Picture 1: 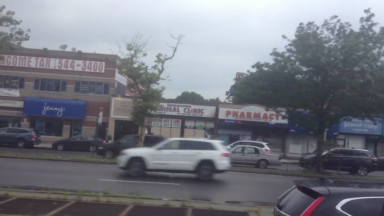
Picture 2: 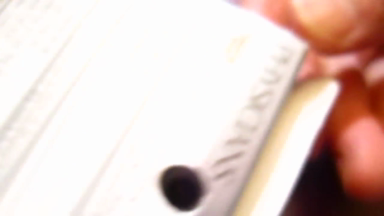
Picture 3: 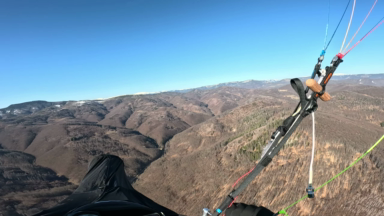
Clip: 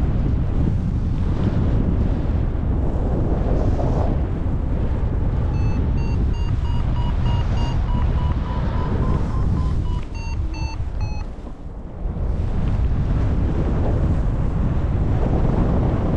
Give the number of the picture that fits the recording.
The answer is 3